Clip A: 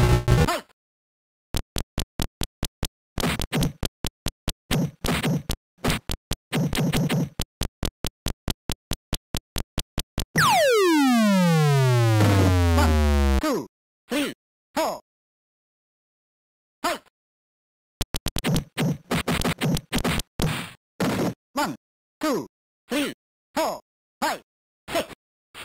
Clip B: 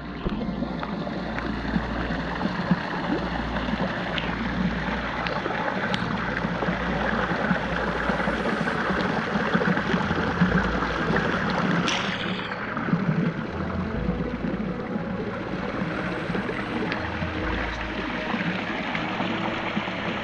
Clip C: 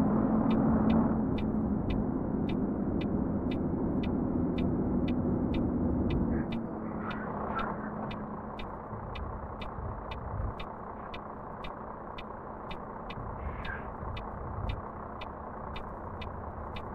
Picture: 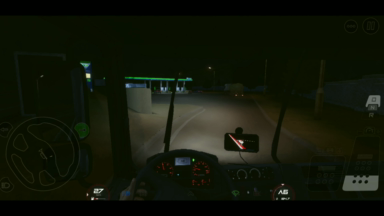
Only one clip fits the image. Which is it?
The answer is C